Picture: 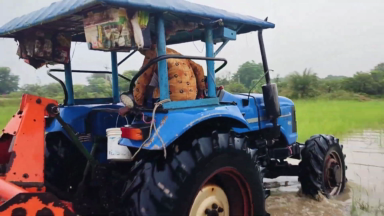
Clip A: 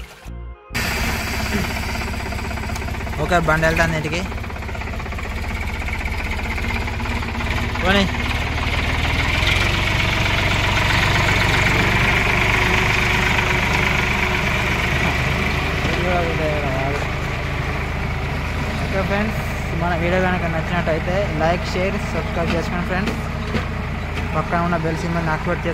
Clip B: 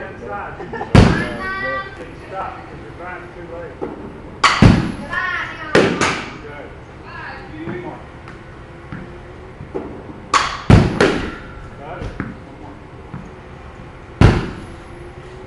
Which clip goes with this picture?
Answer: A